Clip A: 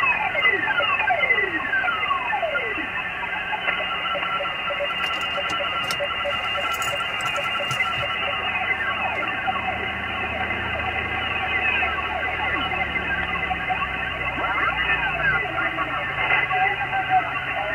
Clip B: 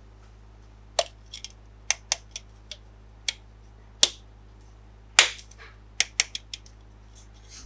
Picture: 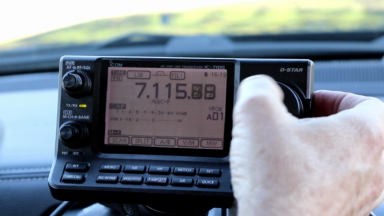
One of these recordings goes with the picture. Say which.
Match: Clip A